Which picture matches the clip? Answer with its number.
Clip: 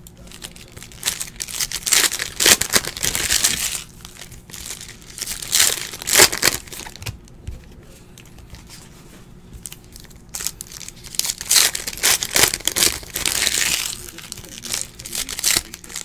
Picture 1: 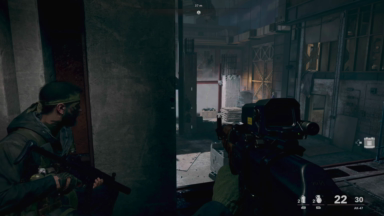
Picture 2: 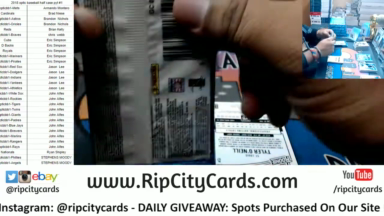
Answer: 2